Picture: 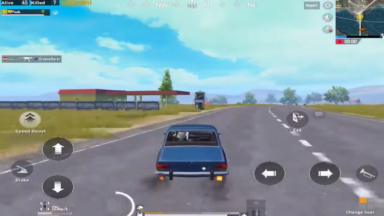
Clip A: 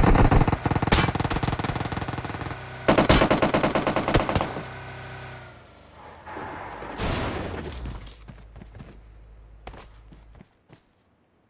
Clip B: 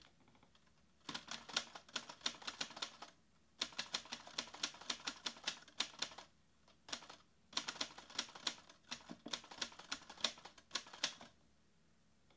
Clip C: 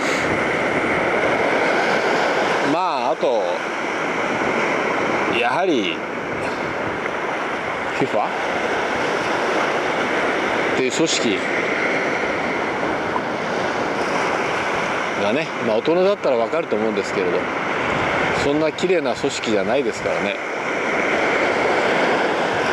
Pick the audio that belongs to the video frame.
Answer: A